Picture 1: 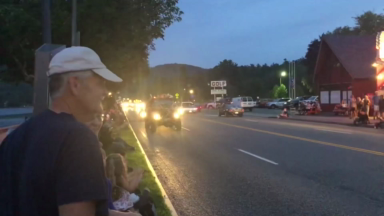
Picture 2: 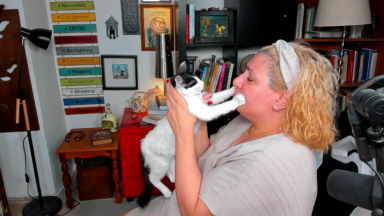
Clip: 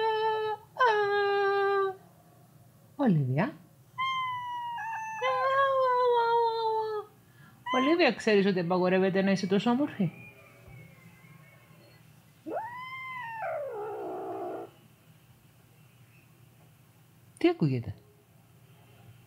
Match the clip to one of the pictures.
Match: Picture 2